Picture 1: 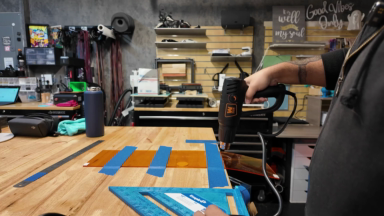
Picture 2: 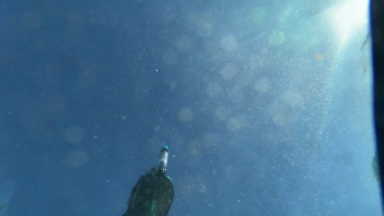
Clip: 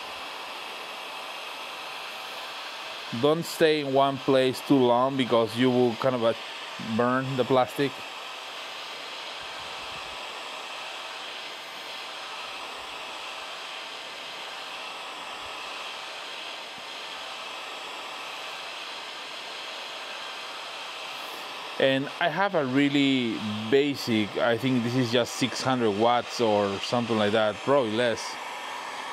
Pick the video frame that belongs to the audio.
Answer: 1